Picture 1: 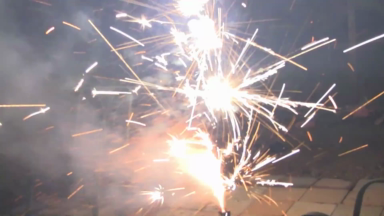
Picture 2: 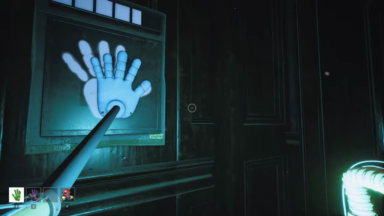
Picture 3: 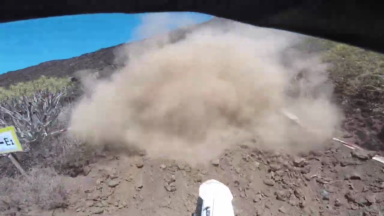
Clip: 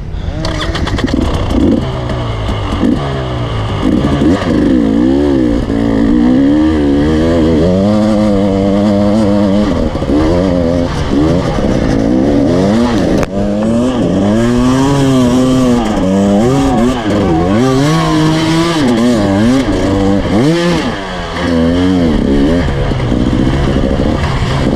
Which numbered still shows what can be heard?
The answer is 3